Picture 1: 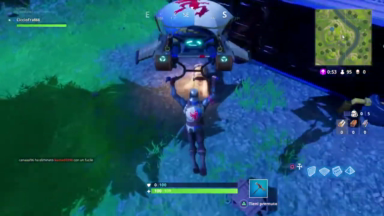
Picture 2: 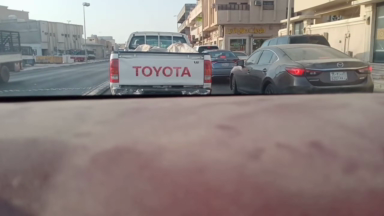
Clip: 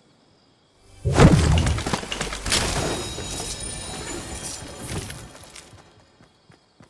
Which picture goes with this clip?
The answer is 1